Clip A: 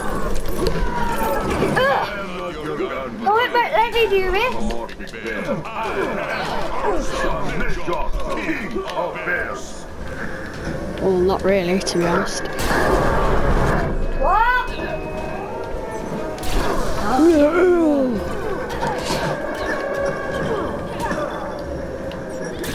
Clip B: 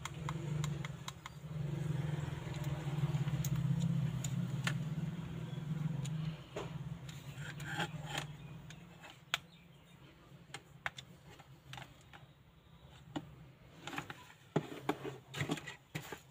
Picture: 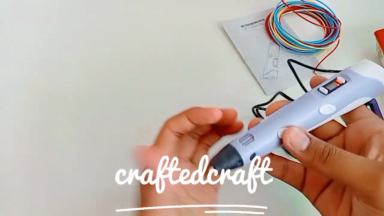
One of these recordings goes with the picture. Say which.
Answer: B